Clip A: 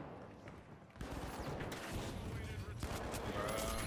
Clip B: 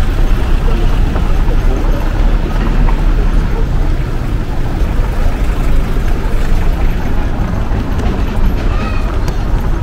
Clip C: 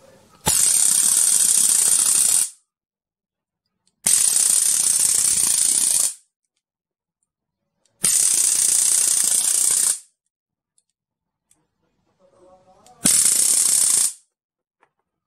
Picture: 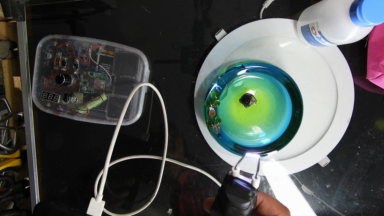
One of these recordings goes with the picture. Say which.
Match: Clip C